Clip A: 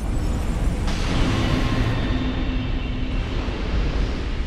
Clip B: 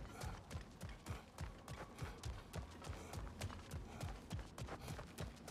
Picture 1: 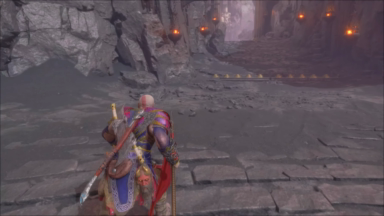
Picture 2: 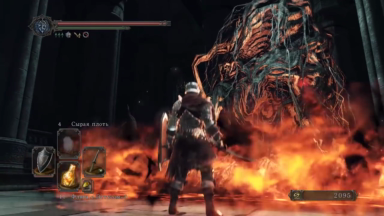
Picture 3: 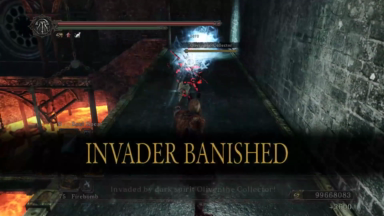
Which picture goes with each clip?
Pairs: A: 3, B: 1